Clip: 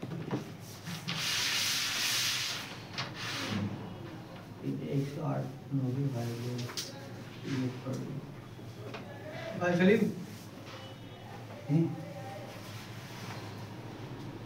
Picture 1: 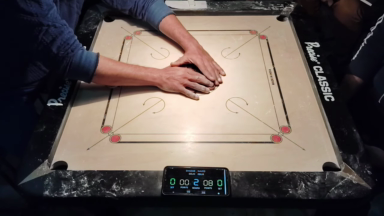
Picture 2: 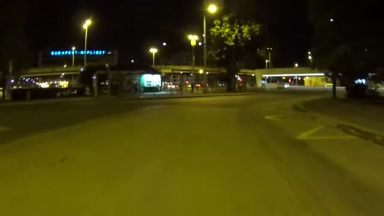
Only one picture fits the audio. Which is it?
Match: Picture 1